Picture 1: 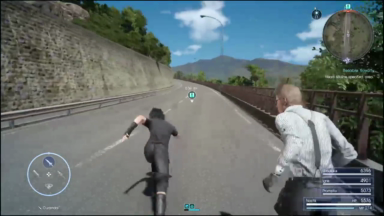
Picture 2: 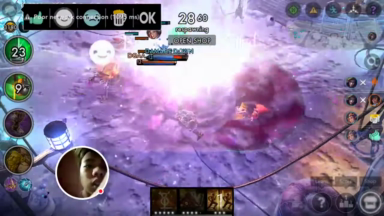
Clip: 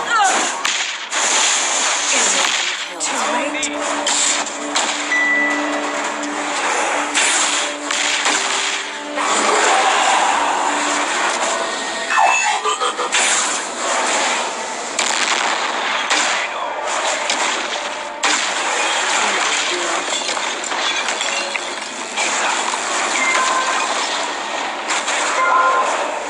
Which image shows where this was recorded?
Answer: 2